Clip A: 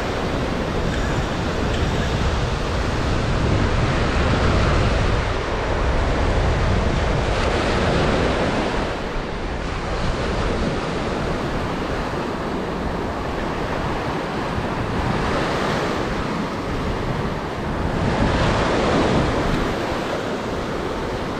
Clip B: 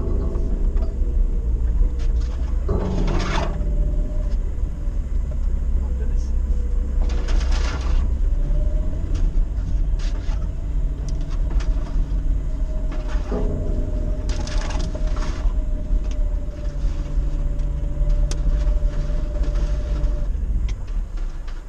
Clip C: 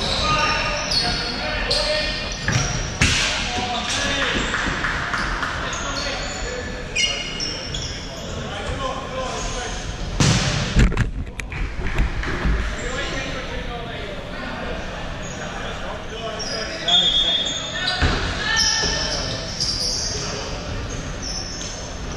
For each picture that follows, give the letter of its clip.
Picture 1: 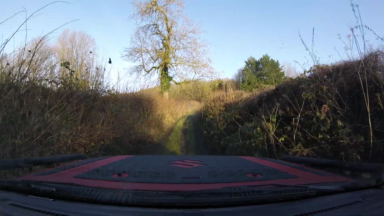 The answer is B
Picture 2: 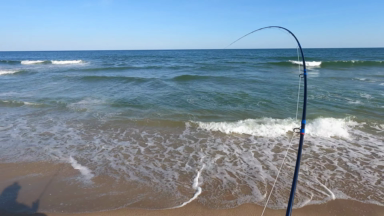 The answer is A